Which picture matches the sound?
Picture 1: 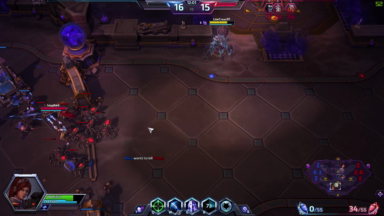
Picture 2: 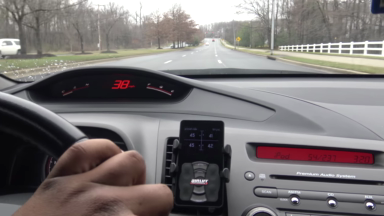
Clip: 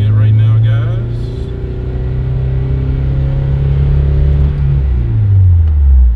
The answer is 2